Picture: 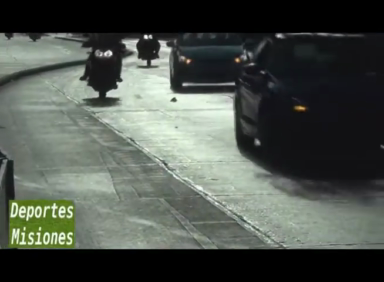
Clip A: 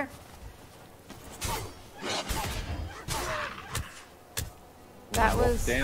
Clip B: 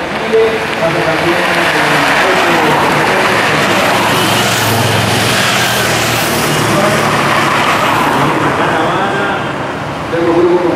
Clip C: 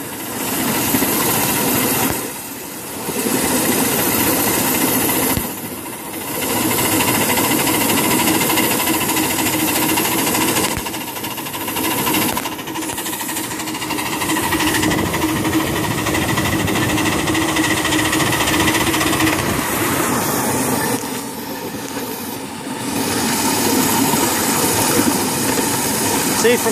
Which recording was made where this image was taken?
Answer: B